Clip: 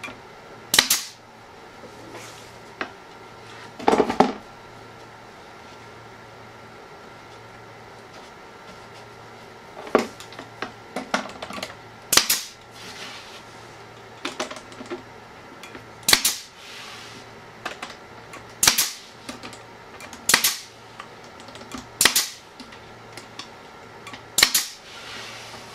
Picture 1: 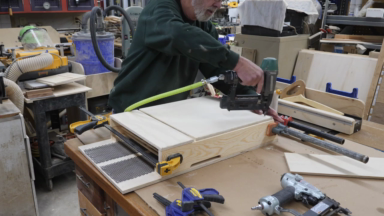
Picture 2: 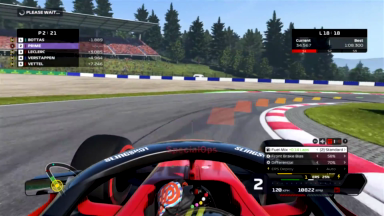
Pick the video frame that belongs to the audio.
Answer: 1